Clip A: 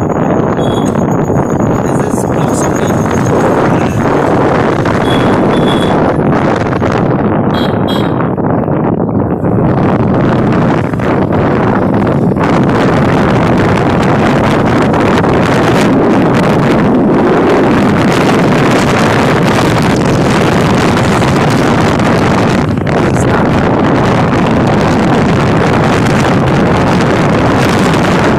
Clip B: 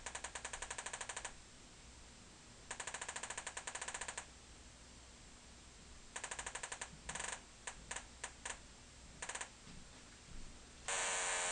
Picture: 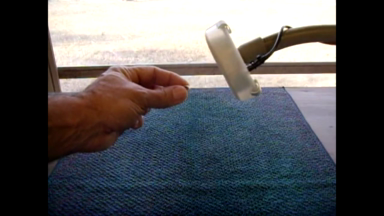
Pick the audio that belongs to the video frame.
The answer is B